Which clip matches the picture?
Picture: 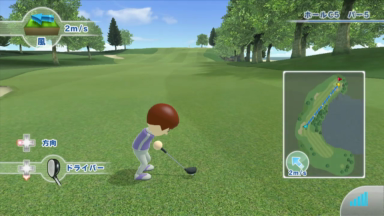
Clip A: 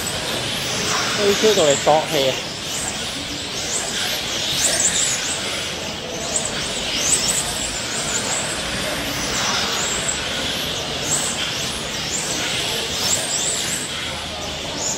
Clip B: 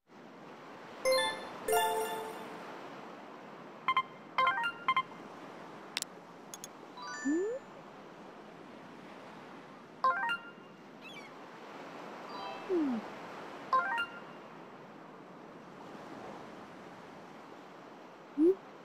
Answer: B